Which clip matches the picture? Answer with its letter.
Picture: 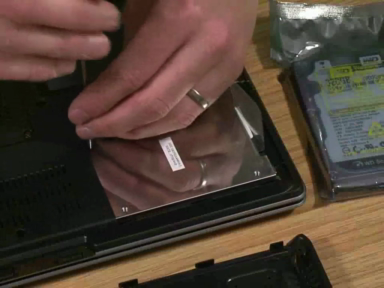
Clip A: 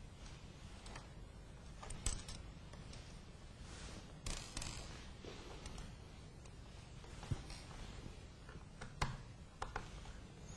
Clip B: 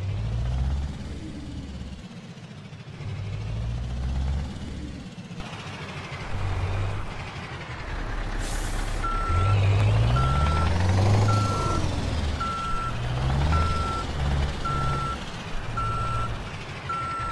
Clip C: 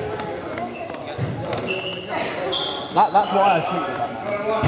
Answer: A